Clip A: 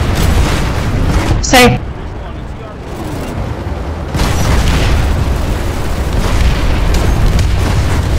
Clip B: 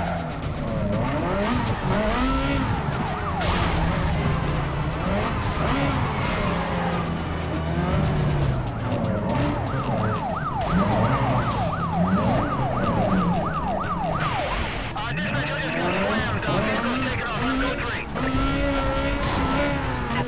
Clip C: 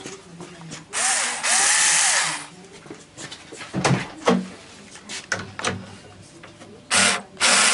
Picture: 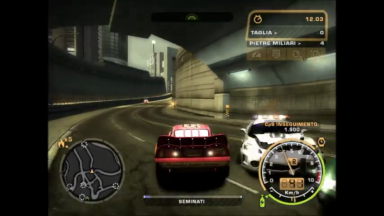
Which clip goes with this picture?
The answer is B